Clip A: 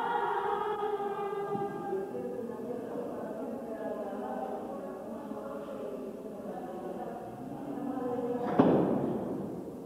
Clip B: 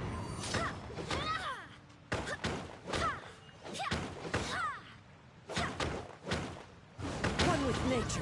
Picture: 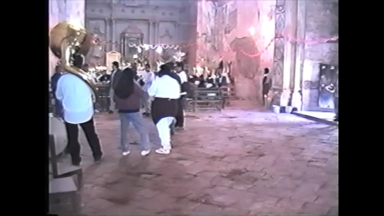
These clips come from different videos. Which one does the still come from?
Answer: A